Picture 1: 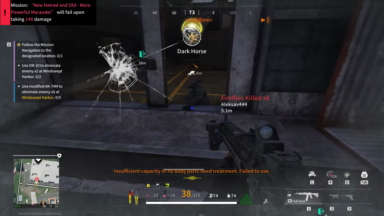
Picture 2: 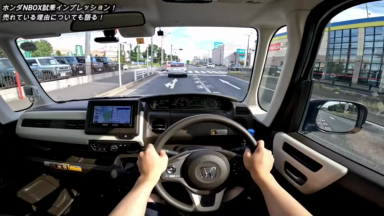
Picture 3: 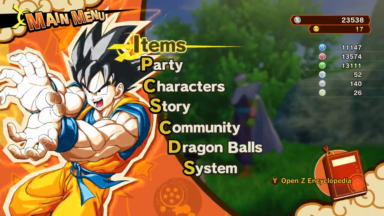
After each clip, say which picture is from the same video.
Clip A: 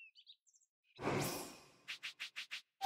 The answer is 3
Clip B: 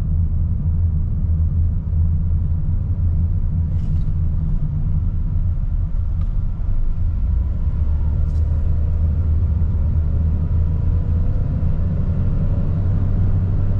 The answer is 2